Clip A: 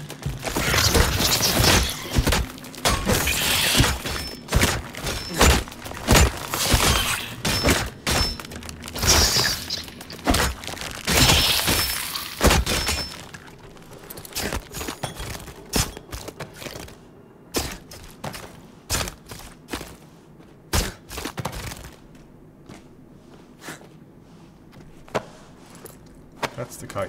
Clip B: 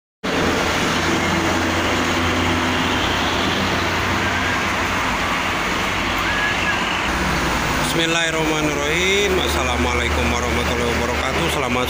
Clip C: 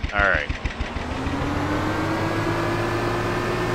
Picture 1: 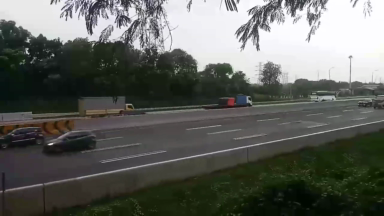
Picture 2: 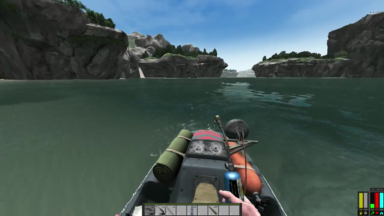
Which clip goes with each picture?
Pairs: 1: B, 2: C